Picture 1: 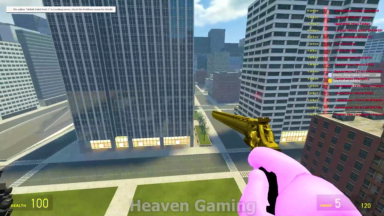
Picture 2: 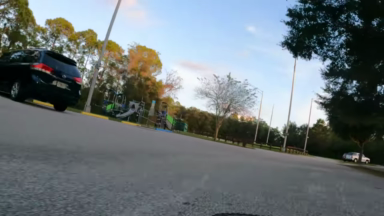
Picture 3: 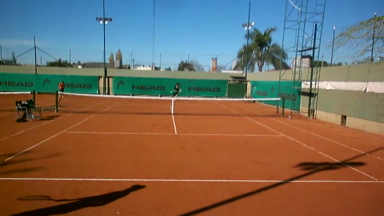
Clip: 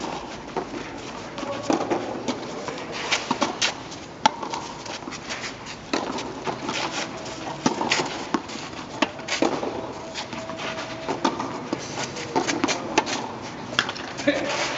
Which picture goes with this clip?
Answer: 3